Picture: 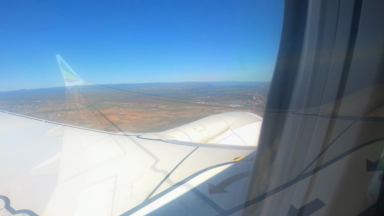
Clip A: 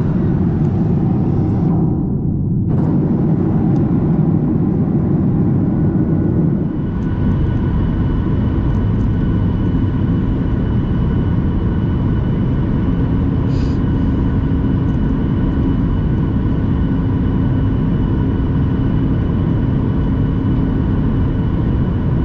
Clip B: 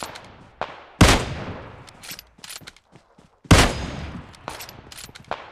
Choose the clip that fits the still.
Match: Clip A